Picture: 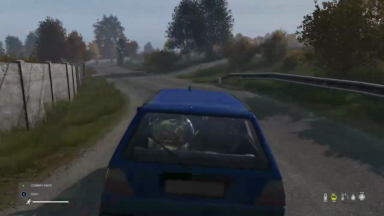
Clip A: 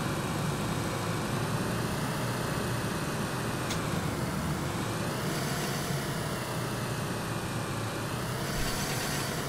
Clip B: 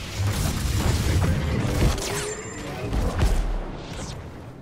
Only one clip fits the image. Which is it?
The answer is A